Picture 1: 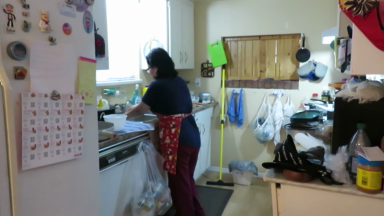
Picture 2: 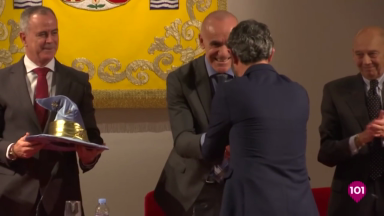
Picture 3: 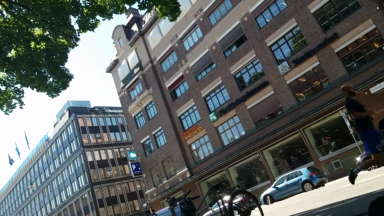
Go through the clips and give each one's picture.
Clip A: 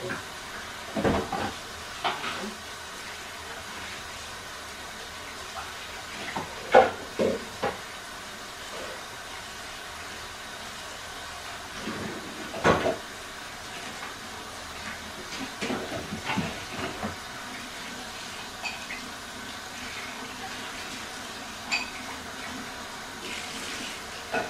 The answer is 1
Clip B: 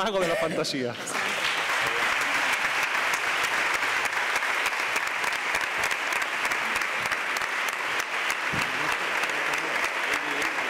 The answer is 2